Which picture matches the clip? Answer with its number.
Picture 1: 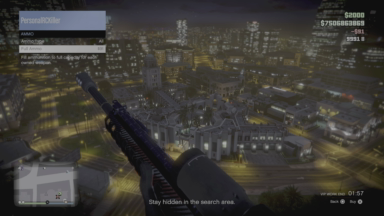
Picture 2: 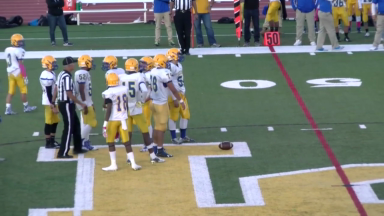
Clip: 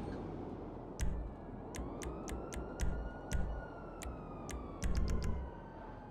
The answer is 1